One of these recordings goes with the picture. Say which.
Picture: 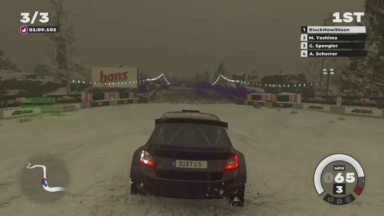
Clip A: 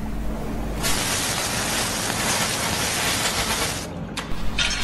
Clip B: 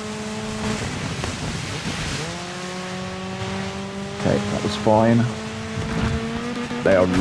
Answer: B